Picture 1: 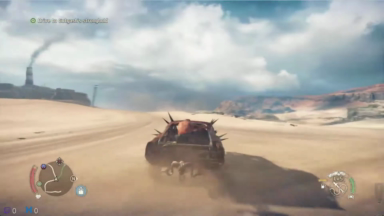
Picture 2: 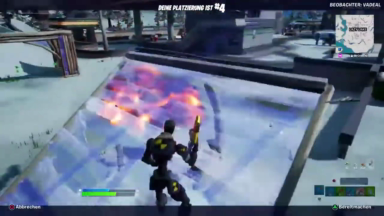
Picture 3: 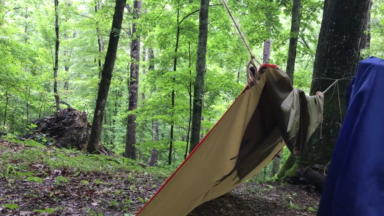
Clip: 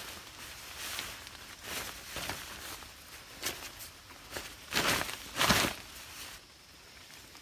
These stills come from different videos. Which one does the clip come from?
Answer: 3